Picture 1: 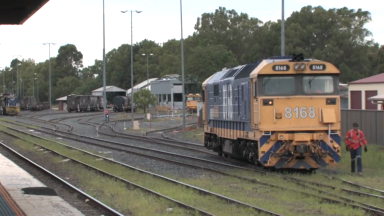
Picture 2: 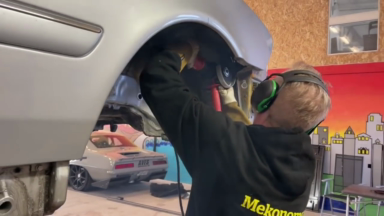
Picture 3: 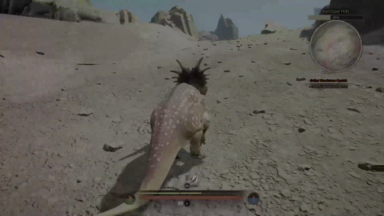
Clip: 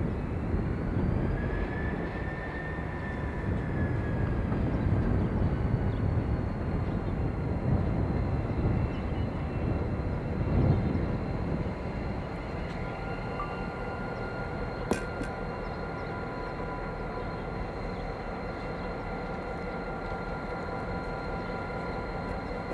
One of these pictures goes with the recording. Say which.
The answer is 1